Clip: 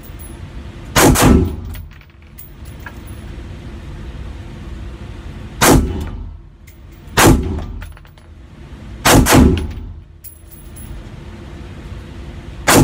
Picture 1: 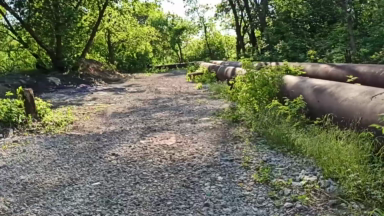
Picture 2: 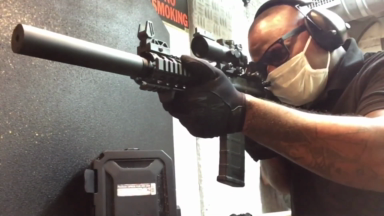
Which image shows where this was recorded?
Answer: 2